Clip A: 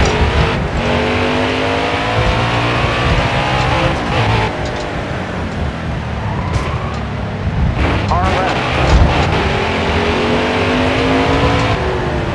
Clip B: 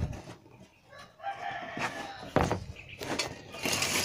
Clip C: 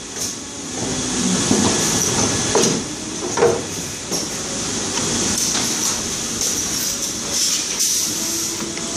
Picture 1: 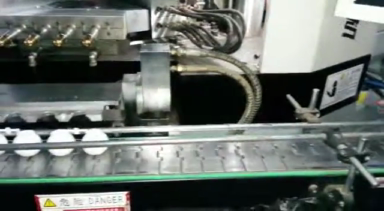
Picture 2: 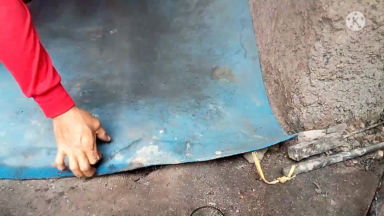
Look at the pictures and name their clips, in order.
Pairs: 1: C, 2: B